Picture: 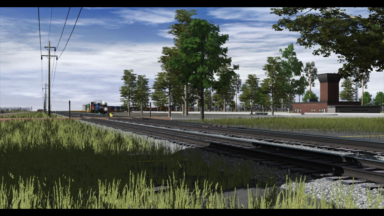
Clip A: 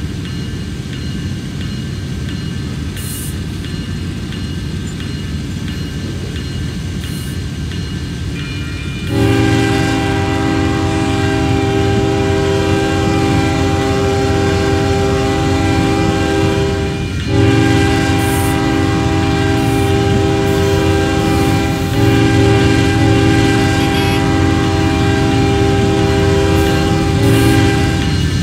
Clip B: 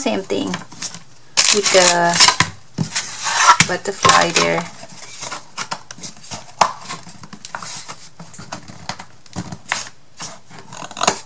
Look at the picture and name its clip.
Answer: A